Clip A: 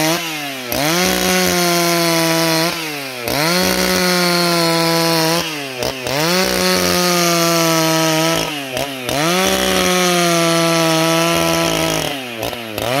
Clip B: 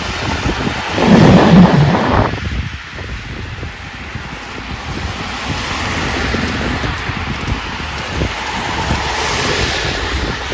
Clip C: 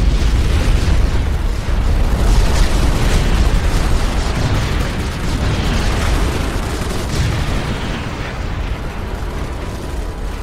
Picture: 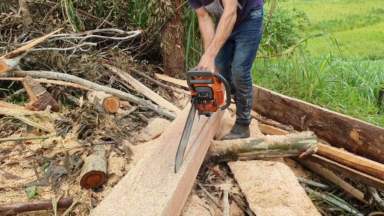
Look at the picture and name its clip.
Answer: A